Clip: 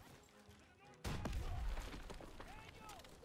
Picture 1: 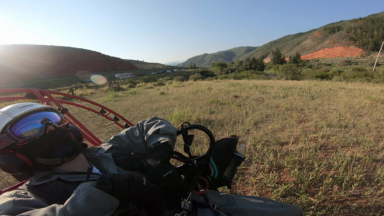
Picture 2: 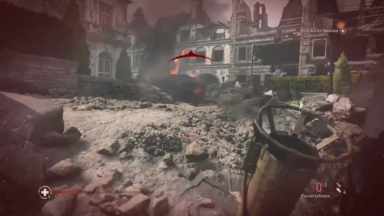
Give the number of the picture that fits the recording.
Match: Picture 2